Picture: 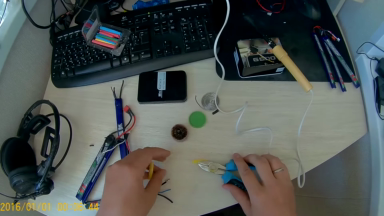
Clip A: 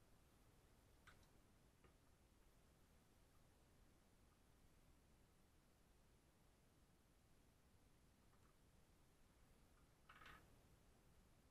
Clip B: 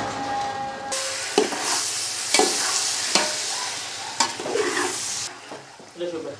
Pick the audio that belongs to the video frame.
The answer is A